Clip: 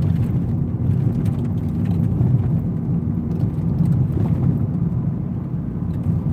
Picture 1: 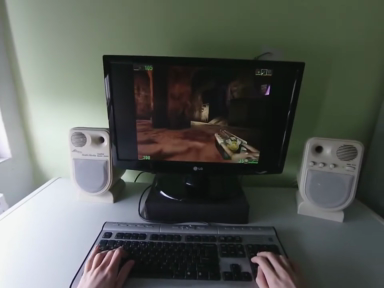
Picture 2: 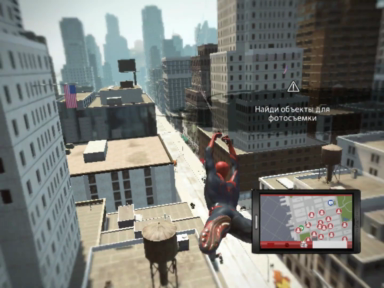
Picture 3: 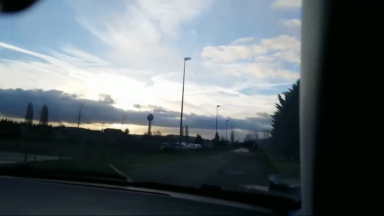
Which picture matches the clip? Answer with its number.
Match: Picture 3